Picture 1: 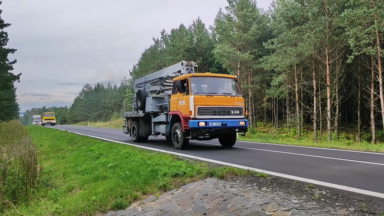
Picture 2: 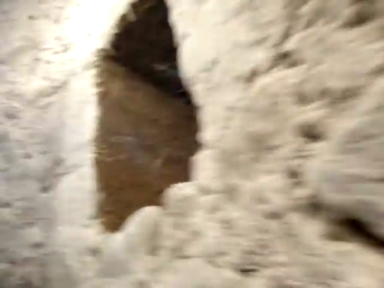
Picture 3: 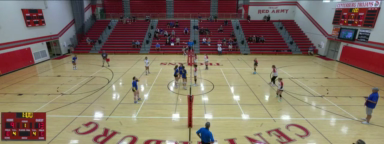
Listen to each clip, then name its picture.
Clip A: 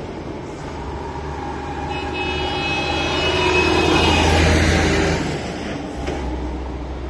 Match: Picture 1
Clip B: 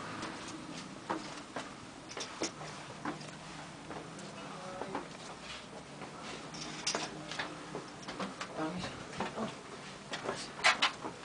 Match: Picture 2